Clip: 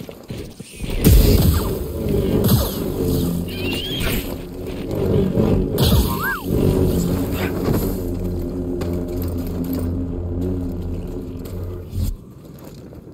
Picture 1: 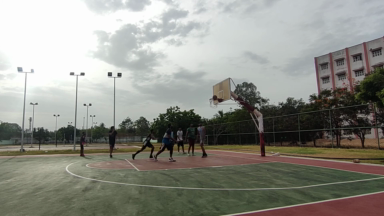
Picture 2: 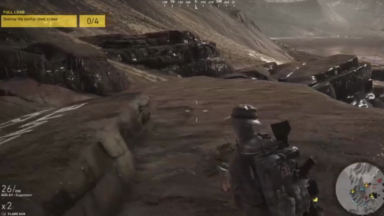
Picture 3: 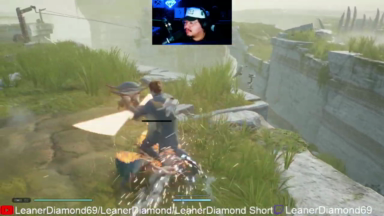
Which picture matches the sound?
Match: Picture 3